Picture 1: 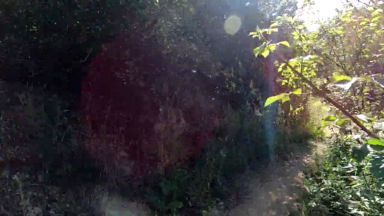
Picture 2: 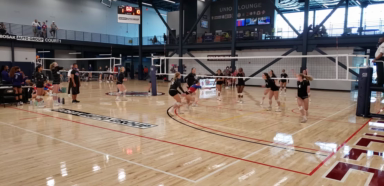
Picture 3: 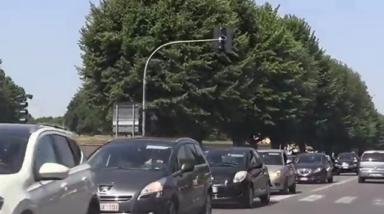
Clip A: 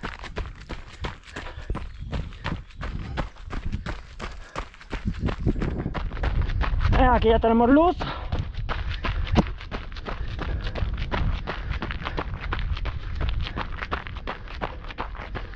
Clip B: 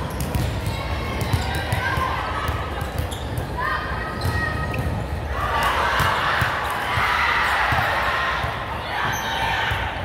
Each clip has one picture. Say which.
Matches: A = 1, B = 2